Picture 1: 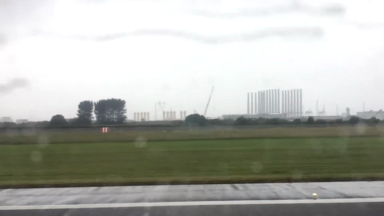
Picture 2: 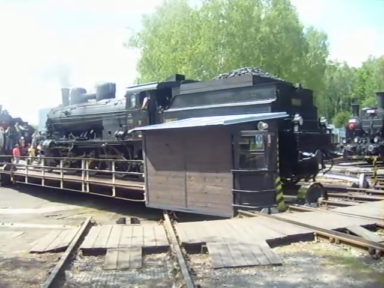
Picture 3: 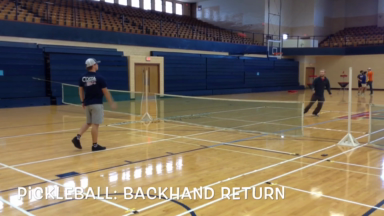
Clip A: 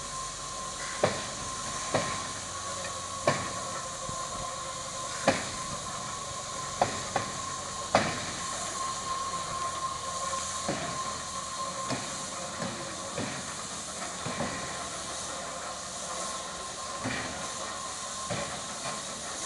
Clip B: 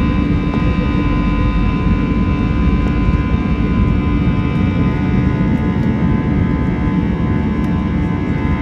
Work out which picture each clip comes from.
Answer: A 2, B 1